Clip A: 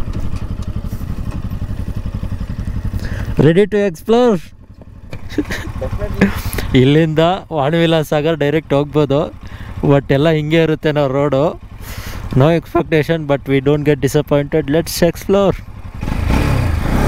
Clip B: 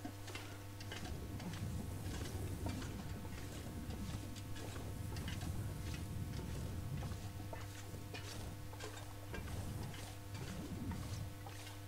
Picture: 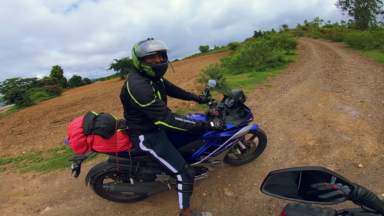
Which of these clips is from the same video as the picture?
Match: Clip A